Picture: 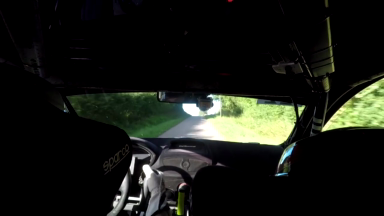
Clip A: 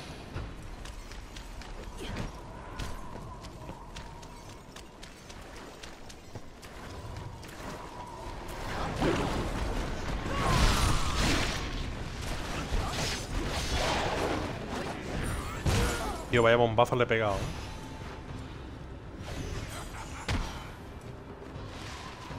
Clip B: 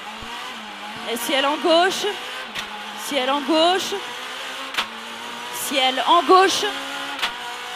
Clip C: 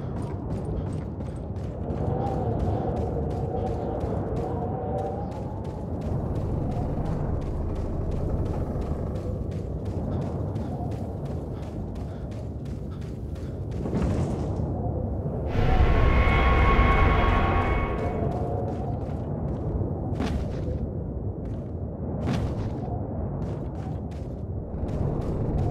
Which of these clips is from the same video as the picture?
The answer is B